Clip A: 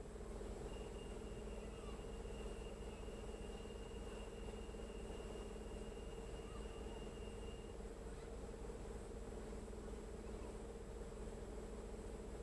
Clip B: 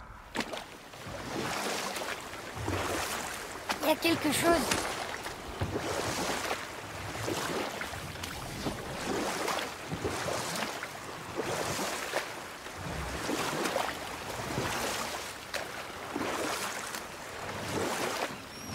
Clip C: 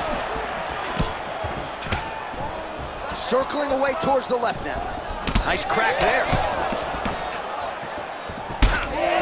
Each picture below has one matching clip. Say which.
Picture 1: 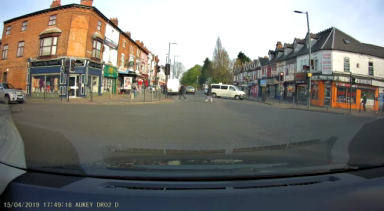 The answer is A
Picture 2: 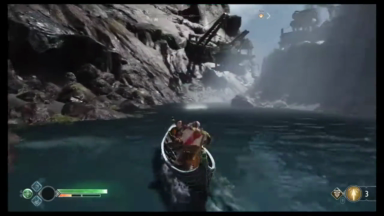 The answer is B